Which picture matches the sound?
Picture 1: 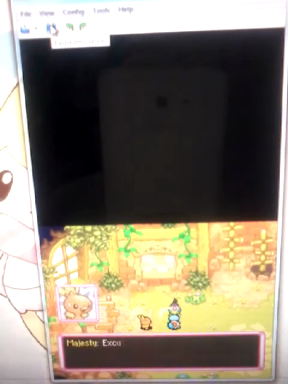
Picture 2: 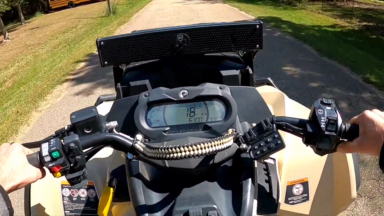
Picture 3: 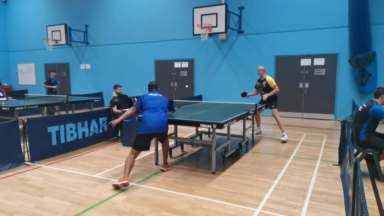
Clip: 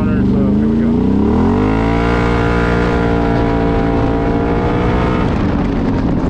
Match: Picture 2